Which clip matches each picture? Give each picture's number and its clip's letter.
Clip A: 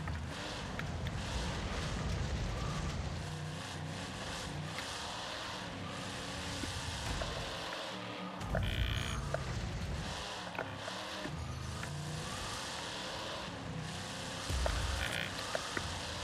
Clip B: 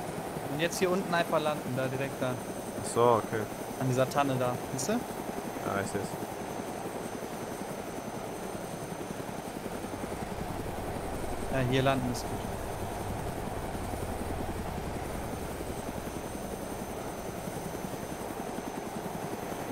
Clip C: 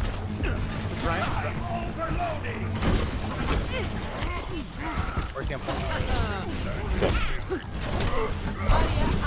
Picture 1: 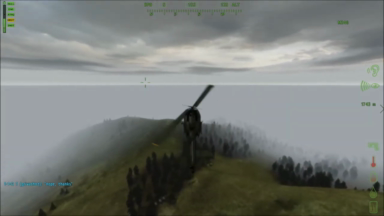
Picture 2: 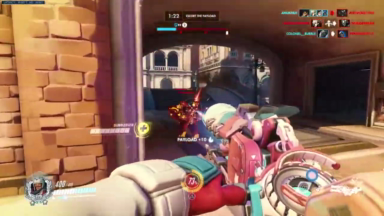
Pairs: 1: B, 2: C